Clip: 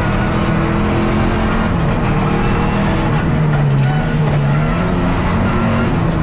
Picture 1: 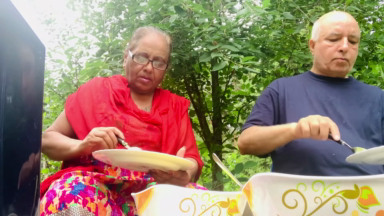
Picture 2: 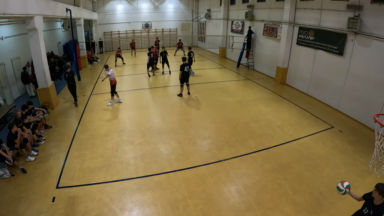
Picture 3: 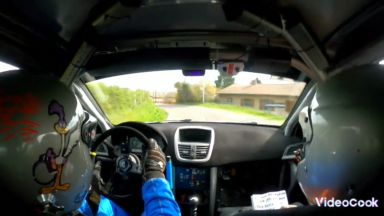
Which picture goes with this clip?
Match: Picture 3